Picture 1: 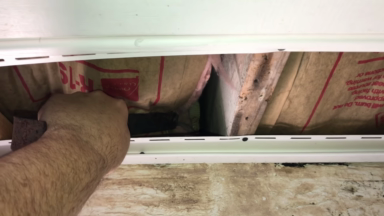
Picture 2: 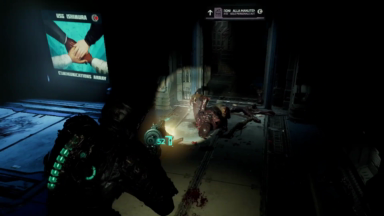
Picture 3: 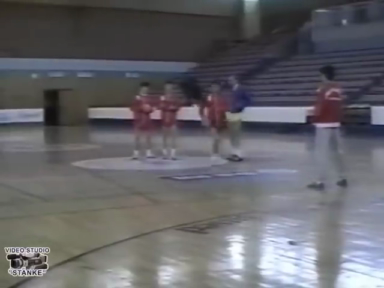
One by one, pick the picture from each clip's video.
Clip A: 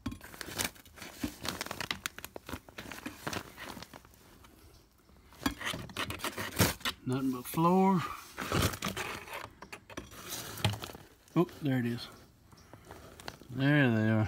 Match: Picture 1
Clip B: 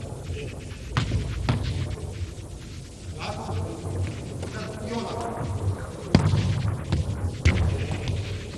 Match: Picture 3